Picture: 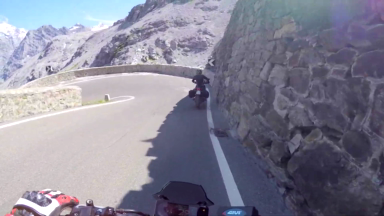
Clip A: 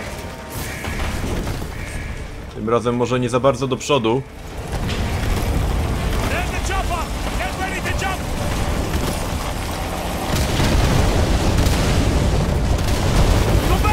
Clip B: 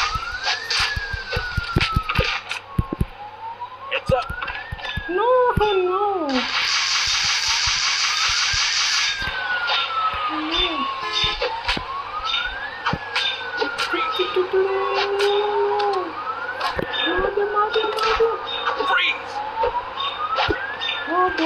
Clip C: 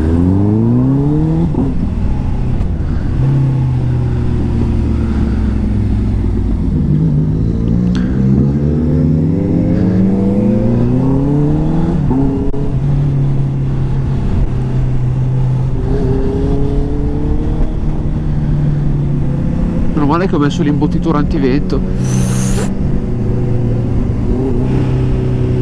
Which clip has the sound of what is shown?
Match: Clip C